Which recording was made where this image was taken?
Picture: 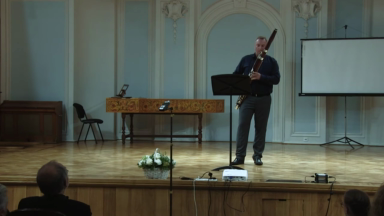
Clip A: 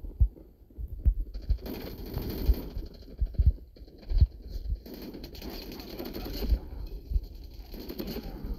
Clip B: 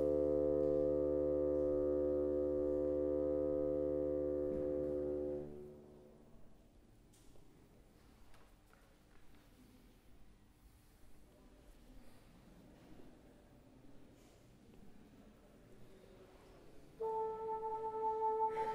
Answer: B